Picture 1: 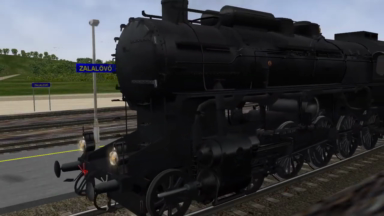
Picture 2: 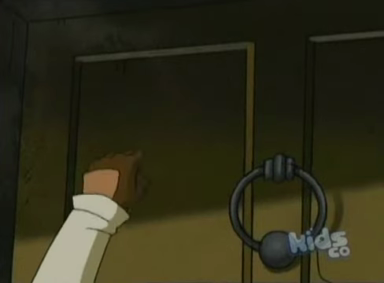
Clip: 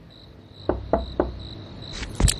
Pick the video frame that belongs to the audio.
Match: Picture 2